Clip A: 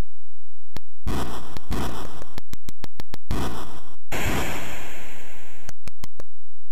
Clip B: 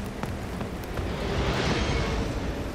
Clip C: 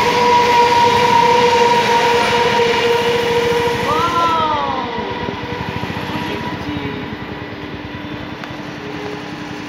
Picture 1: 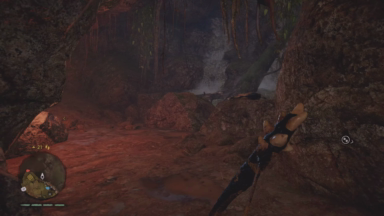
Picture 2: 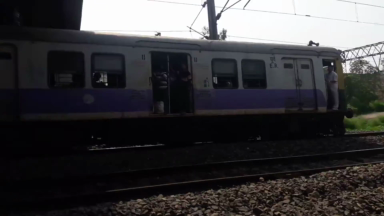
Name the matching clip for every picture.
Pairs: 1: B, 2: C